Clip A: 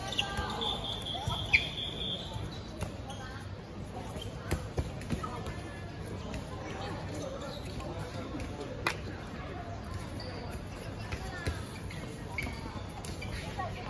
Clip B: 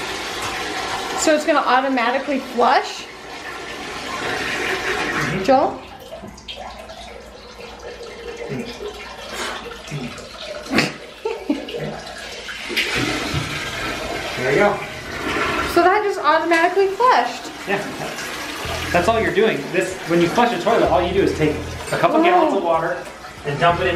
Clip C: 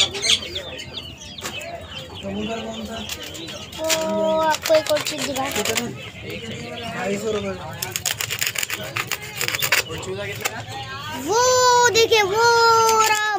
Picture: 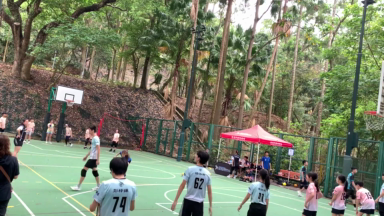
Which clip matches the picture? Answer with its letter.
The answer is A